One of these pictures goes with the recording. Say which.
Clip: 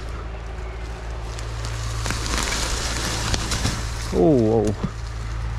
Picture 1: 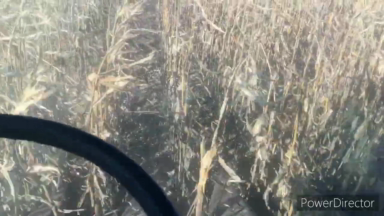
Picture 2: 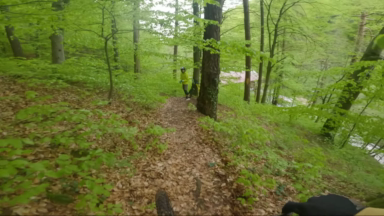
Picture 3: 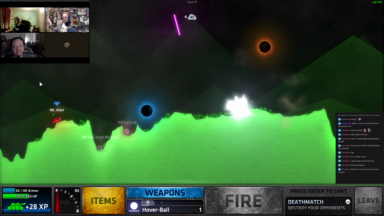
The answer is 2